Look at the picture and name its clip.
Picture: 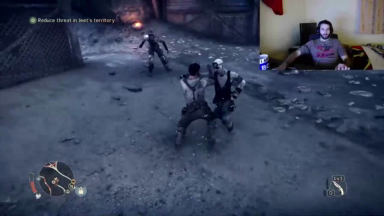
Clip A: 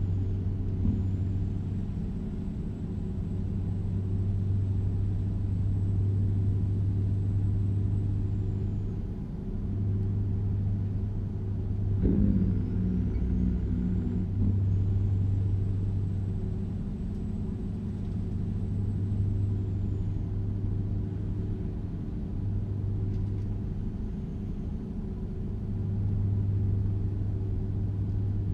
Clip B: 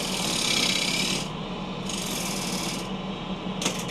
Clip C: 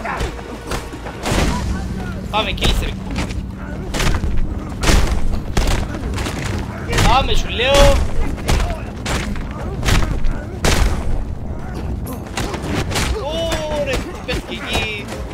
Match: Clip C